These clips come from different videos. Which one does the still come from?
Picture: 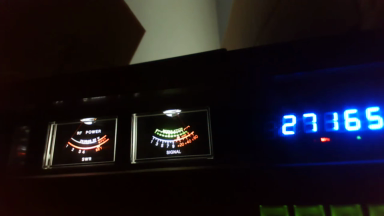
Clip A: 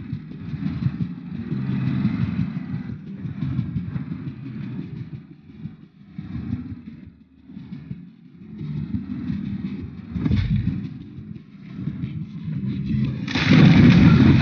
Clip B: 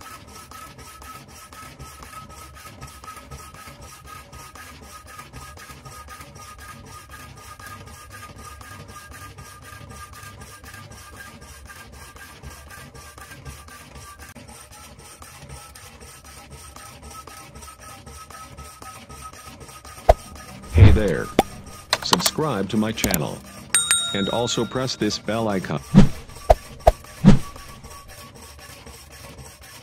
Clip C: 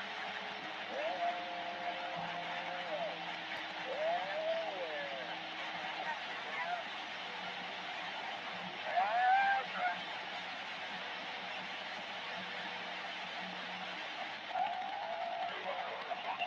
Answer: C